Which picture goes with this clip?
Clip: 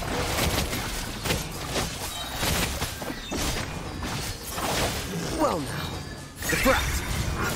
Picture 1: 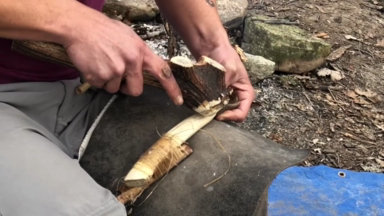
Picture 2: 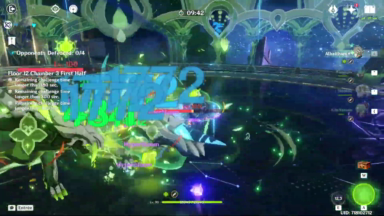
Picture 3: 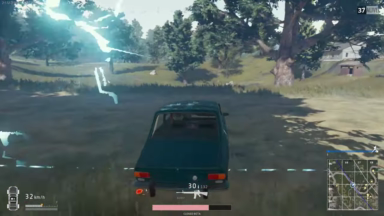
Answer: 2